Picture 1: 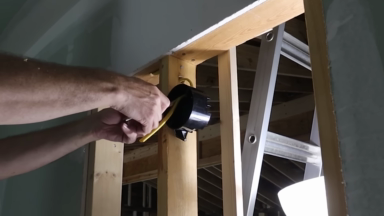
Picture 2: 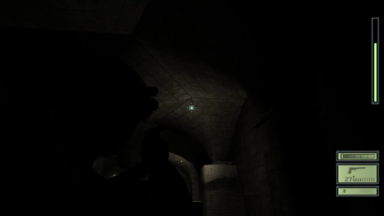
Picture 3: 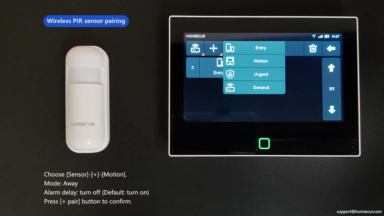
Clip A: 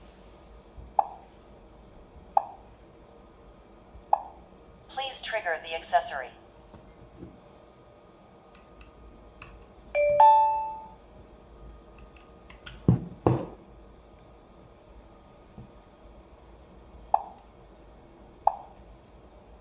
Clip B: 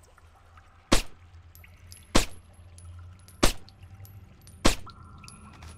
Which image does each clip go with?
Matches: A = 3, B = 2